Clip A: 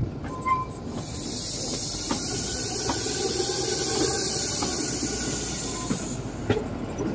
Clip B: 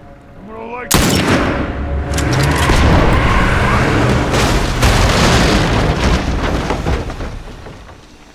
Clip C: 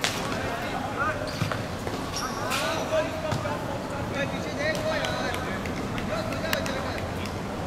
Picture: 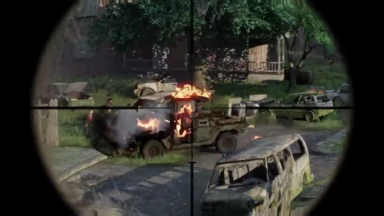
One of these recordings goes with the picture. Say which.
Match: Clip B